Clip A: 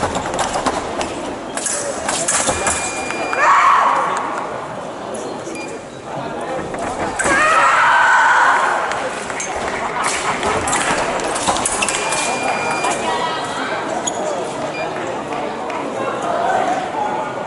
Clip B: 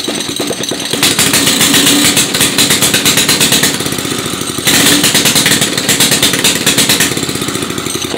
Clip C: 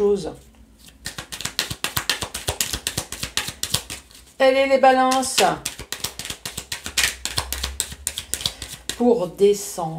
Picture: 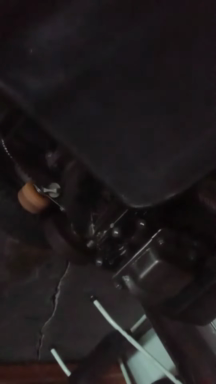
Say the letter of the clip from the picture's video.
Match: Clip B